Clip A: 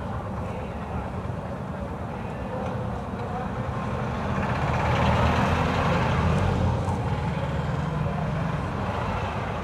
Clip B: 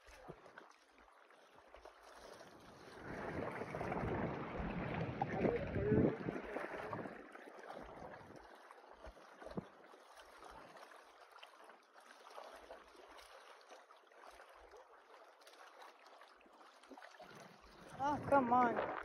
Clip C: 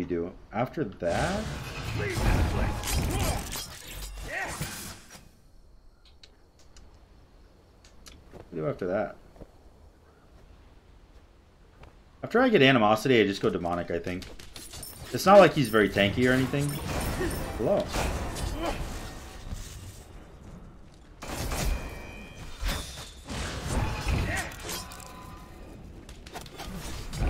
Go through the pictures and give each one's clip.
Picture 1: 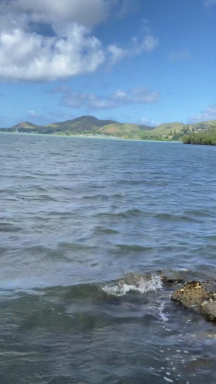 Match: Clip B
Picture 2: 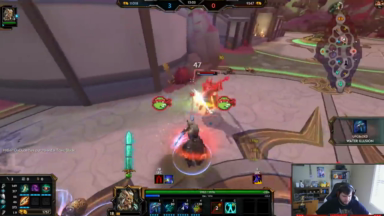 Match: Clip C